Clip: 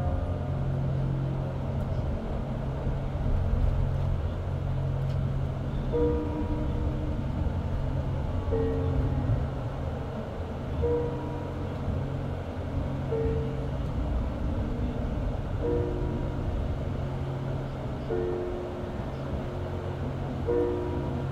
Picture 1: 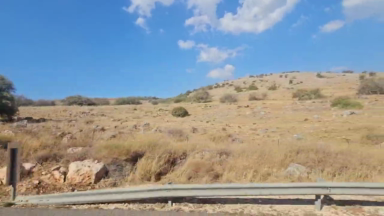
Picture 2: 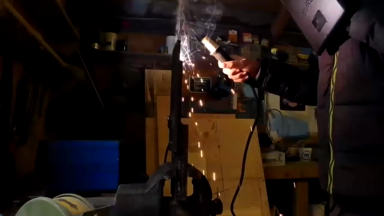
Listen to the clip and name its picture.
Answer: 1